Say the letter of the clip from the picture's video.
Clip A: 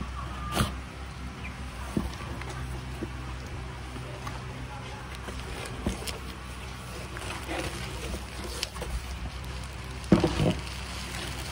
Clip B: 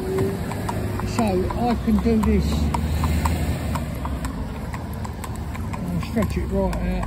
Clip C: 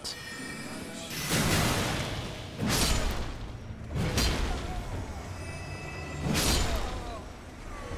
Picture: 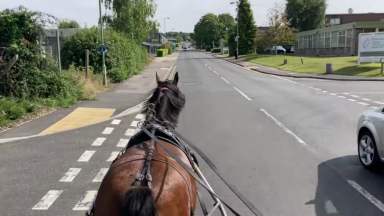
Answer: B